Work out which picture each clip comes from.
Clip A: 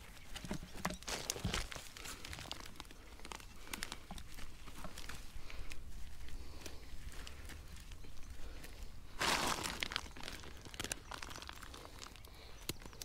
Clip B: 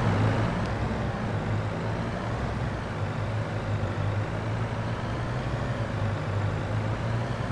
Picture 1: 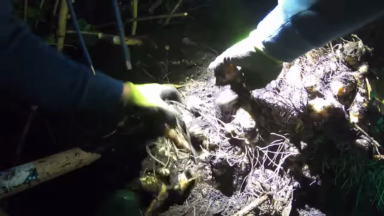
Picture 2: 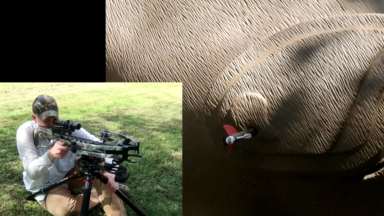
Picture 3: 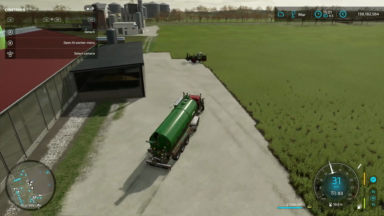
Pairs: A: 1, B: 3